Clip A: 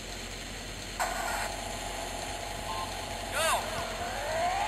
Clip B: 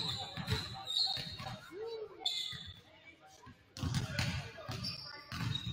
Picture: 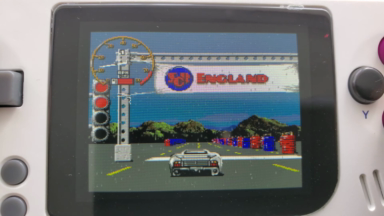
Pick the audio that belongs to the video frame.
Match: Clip A